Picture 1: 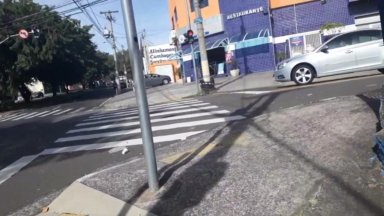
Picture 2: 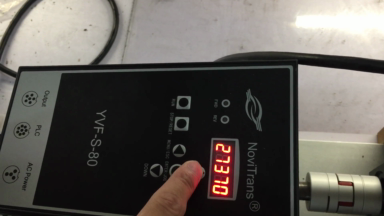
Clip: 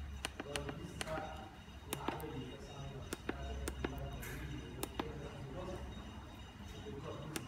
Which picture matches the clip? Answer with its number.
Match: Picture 2